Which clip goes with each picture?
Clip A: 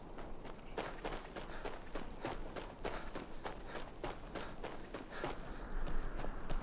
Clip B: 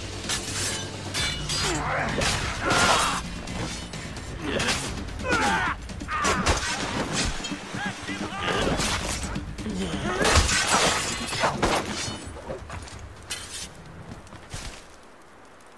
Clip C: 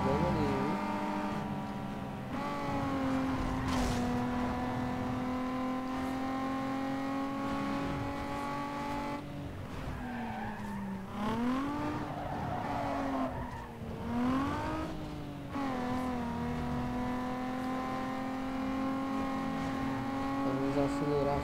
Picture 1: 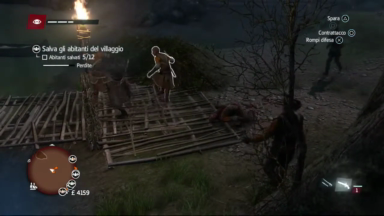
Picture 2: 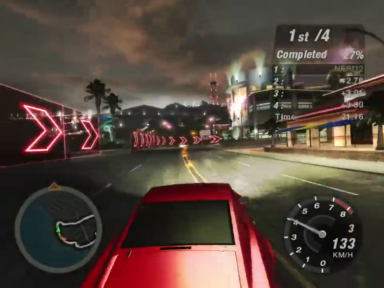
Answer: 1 B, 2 C